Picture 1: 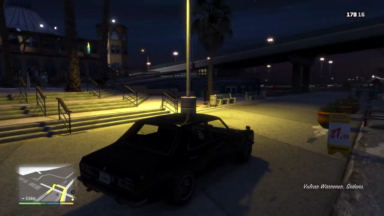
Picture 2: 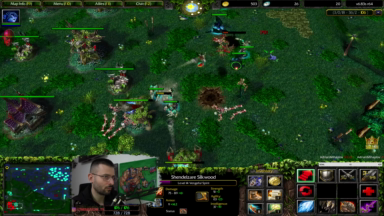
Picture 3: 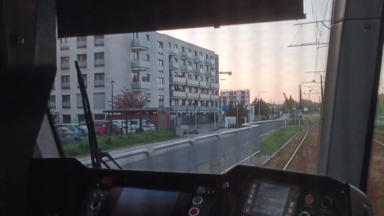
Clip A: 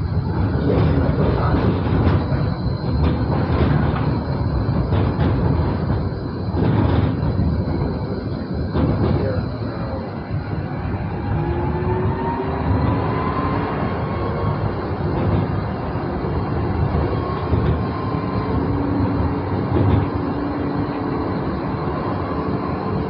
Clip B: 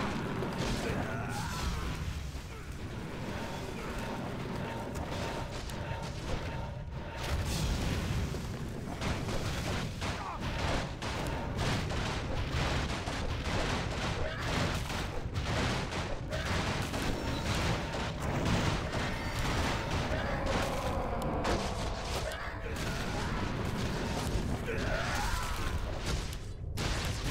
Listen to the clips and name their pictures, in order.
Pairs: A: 3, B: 2